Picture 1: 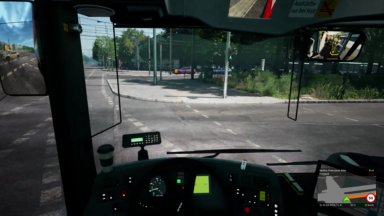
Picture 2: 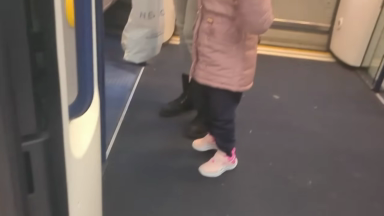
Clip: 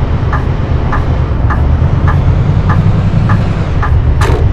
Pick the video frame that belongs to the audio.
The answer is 1